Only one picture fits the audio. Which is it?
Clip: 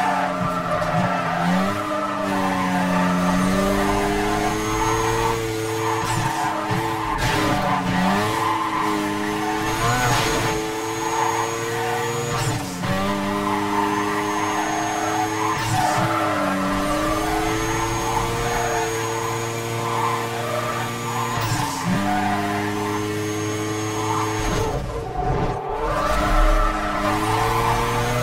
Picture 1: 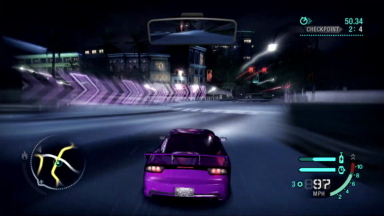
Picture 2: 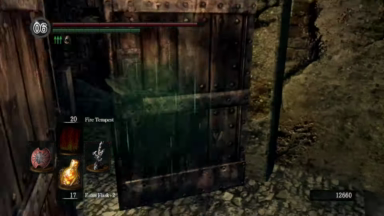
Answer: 1